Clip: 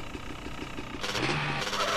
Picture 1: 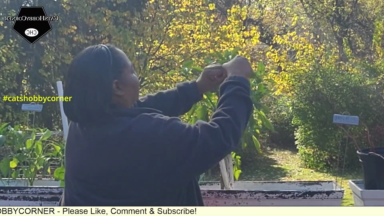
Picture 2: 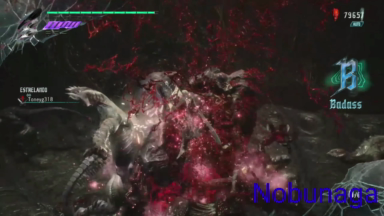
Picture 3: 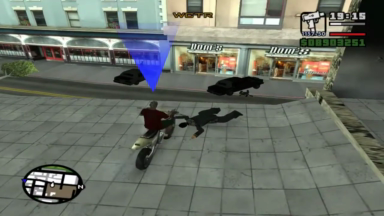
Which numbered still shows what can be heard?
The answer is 3